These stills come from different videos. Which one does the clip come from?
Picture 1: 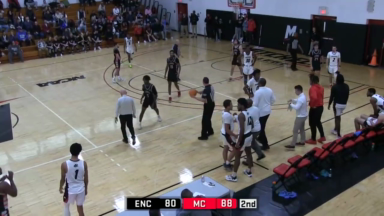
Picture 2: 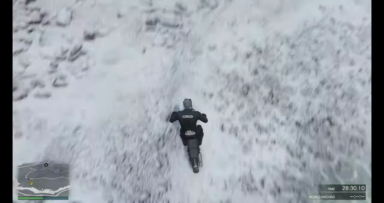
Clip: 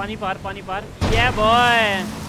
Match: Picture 2